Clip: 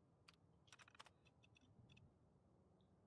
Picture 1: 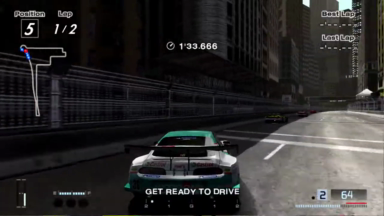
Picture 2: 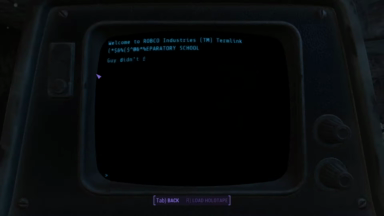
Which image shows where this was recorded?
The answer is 2